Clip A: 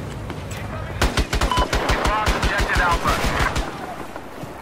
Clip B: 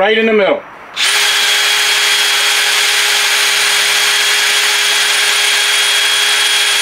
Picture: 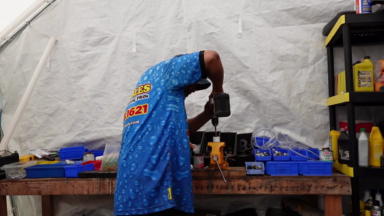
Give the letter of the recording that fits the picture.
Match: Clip B